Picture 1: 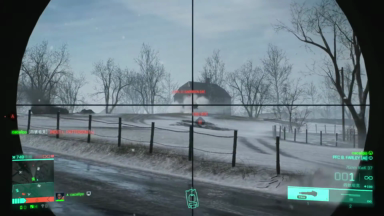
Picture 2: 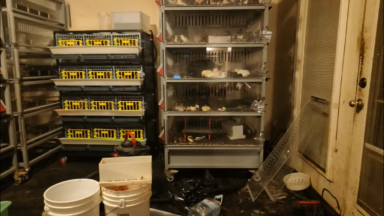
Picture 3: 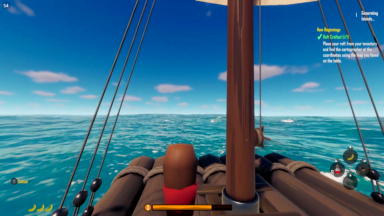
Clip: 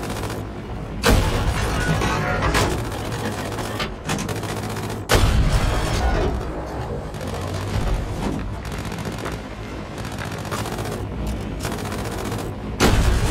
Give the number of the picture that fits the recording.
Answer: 1